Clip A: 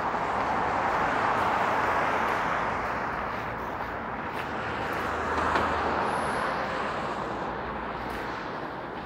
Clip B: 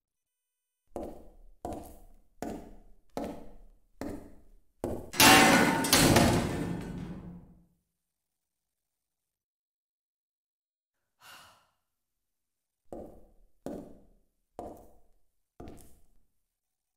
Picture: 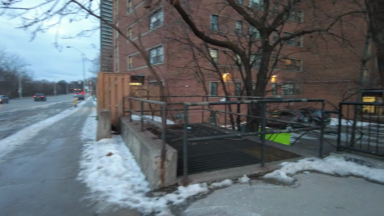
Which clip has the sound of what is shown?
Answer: A